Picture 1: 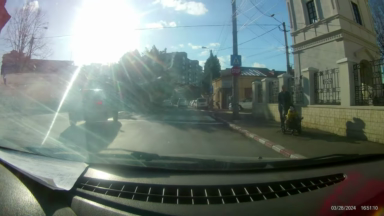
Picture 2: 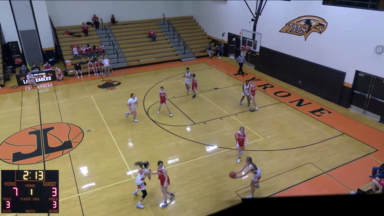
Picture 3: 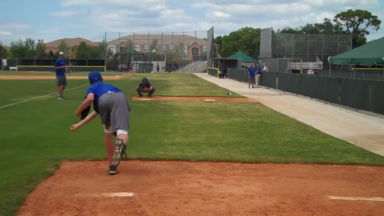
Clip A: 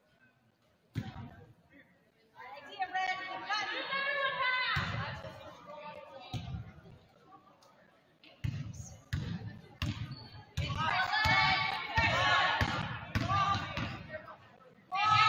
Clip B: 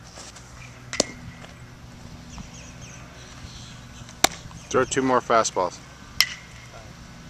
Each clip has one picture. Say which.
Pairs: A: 2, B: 3